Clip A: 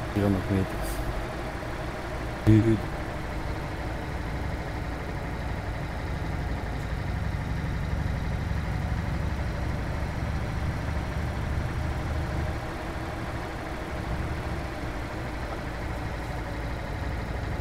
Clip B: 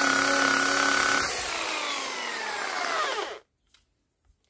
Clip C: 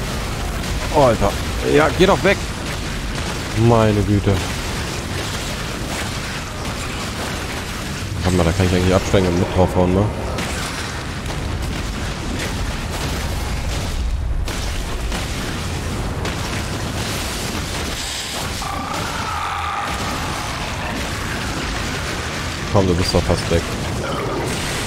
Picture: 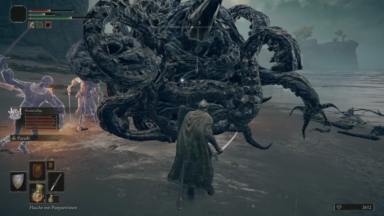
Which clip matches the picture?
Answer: C